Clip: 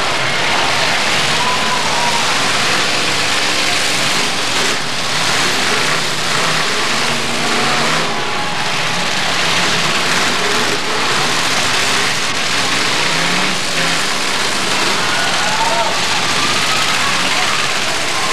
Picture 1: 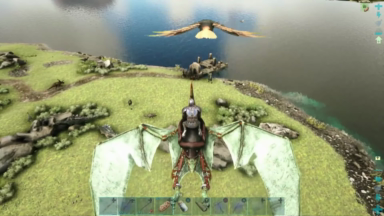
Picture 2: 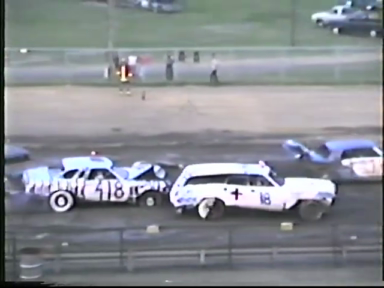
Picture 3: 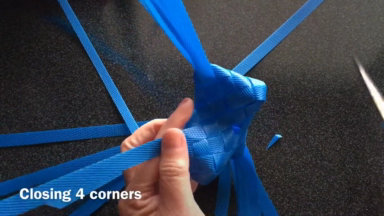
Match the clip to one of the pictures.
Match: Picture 2